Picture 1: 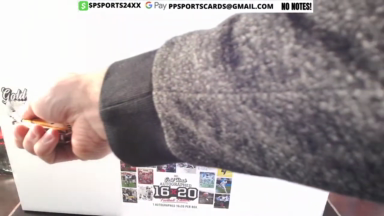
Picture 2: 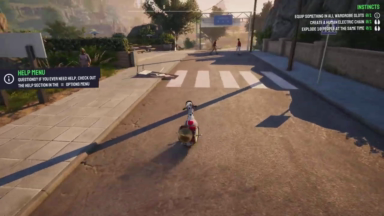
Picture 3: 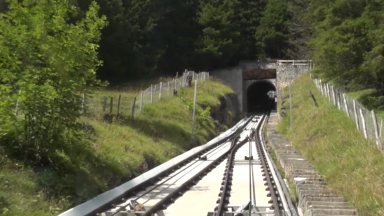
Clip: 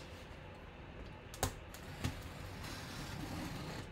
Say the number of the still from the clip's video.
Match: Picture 1